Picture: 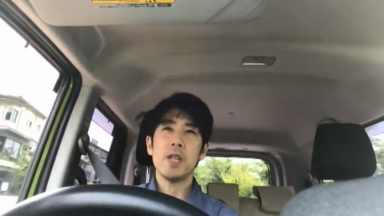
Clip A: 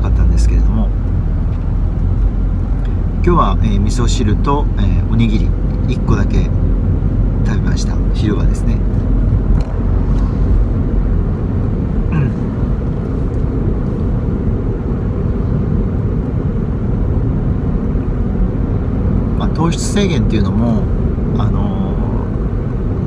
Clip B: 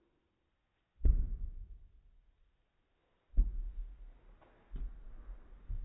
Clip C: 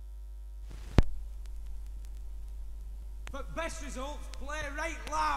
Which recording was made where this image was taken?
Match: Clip A